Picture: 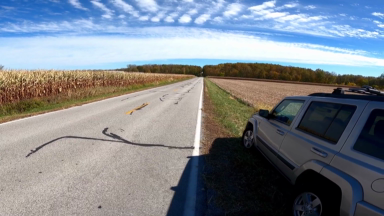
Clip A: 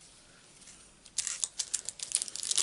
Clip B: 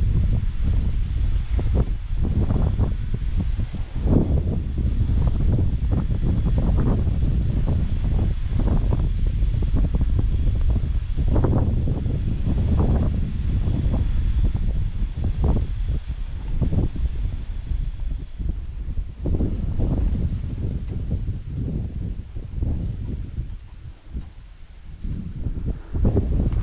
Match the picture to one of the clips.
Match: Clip B